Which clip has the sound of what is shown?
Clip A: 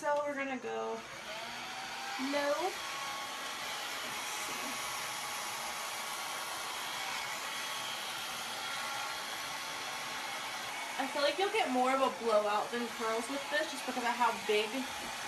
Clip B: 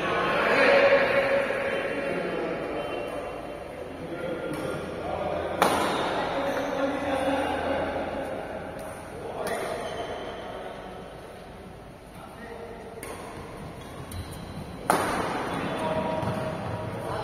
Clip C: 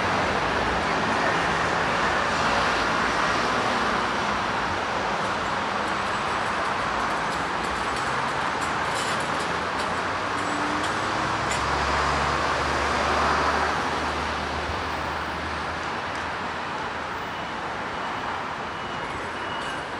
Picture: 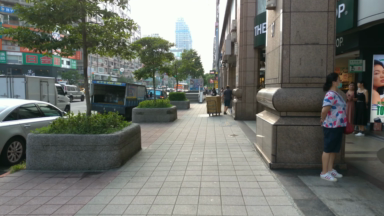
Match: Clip C